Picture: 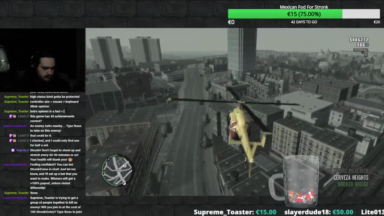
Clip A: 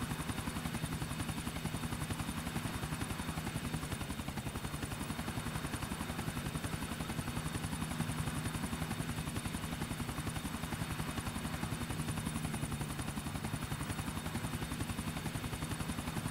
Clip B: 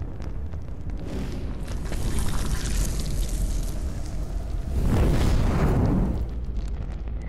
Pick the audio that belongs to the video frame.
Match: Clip A